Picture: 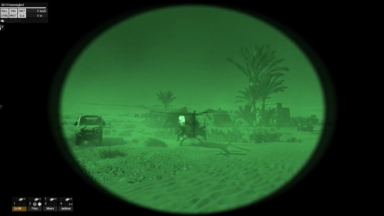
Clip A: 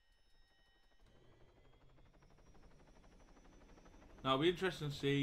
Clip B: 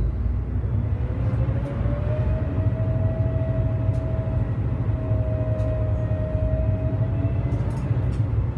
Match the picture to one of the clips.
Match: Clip A